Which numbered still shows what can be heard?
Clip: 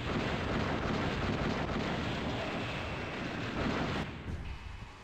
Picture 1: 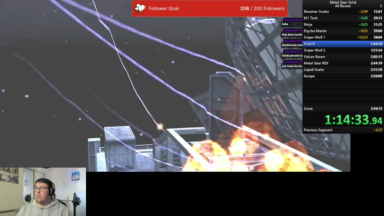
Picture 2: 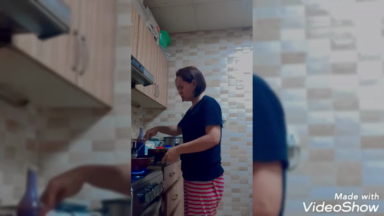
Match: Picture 1